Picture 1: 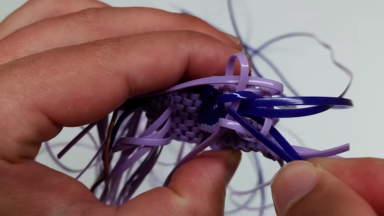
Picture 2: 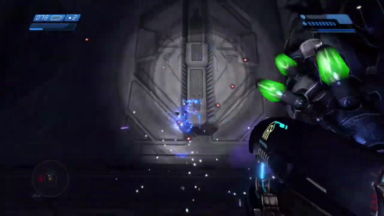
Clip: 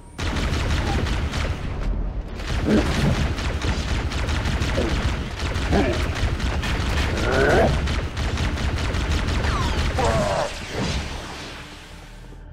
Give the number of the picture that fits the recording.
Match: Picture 2